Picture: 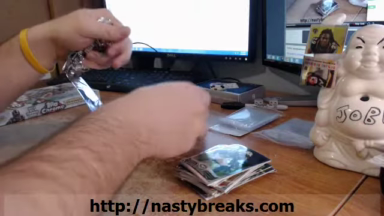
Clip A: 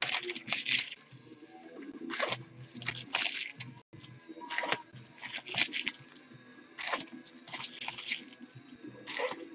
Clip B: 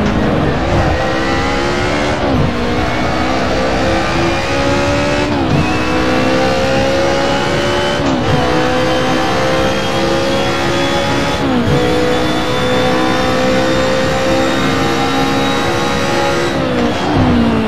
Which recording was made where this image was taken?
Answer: A